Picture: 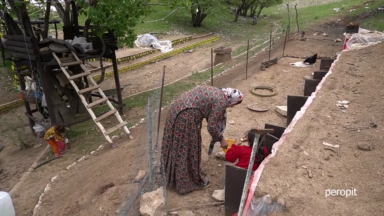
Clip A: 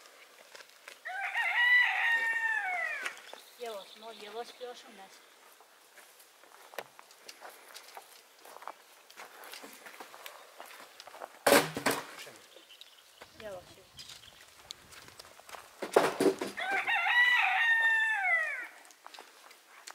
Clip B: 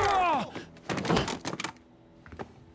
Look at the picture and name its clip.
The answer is A